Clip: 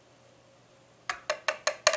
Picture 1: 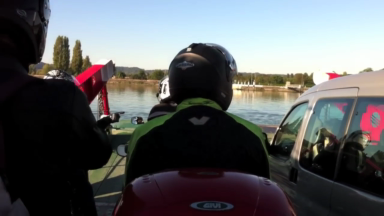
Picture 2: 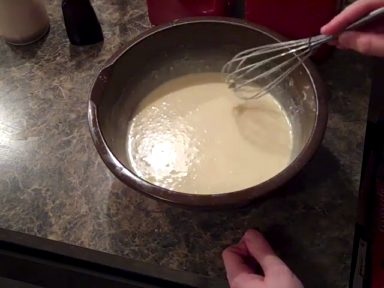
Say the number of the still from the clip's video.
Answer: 2